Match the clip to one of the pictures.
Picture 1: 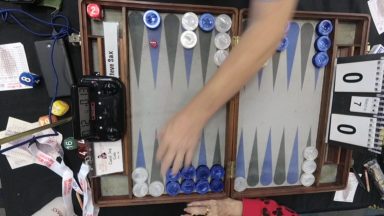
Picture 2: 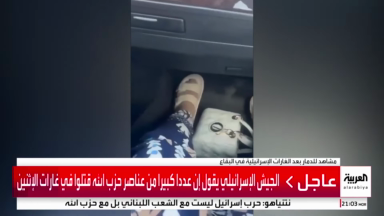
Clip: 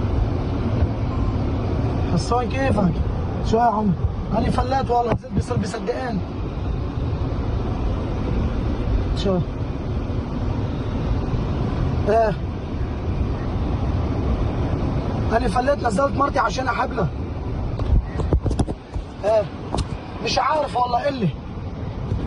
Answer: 2